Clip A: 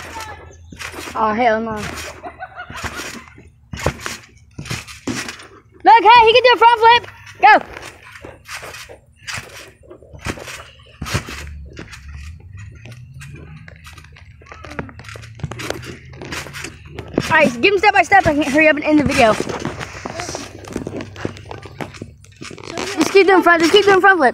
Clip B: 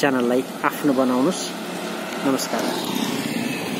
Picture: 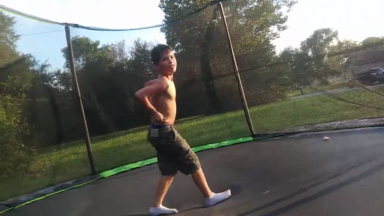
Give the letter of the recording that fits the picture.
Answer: A